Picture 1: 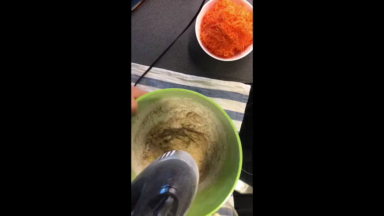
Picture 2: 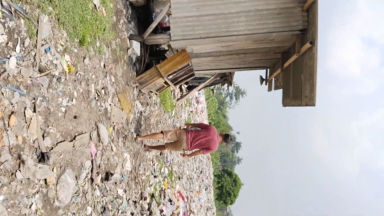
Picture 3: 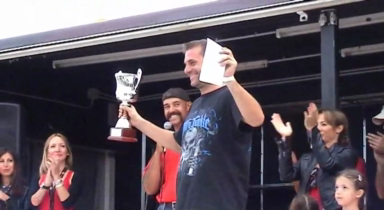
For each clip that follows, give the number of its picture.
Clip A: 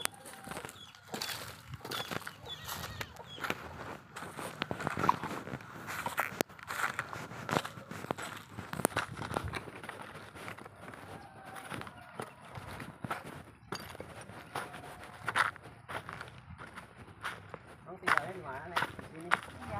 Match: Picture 2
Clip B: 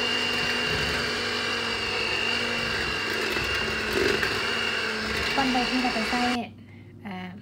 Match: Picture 1